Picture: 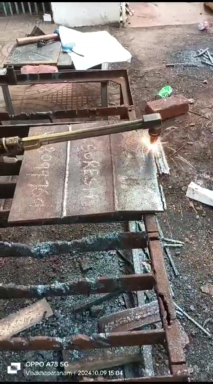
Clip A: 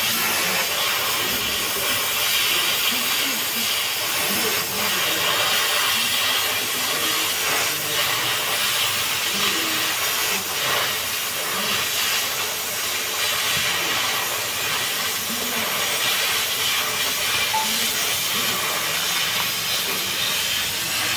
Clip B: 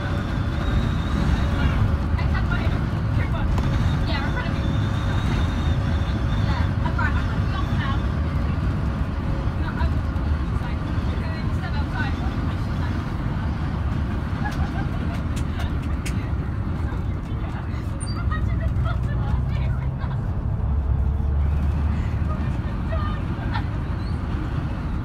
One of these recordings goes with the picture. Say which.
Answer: A